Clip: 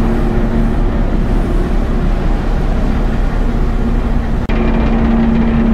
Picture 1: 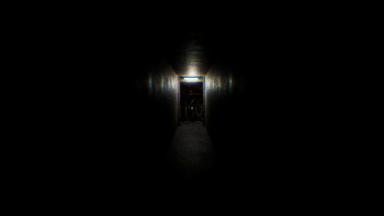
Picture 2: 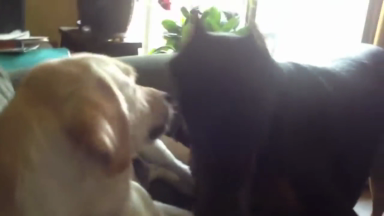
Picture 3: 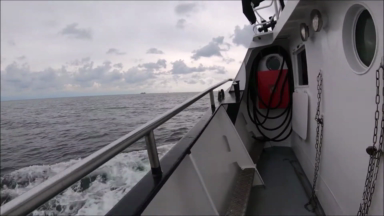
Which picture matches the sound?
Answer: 3